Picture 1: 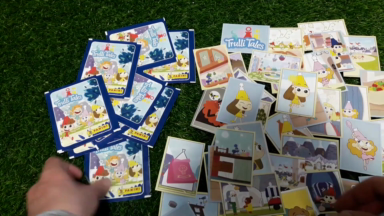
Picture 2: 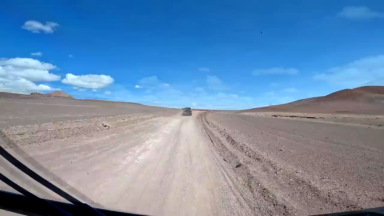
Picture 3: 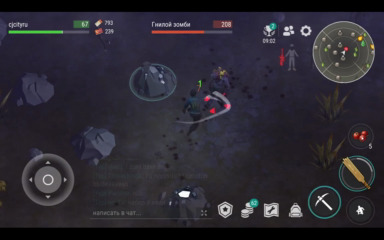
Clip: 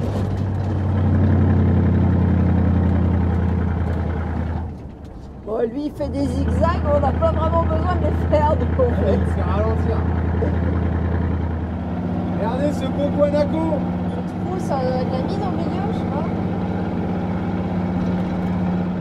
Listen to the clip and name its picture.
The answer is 2